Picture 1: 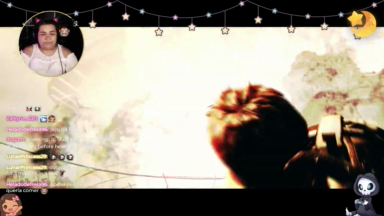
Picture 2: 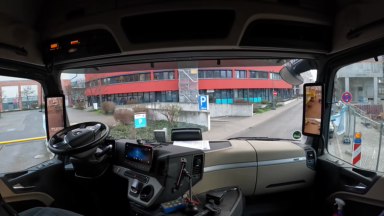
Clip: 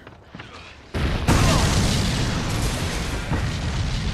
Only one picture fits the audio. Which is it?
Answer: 1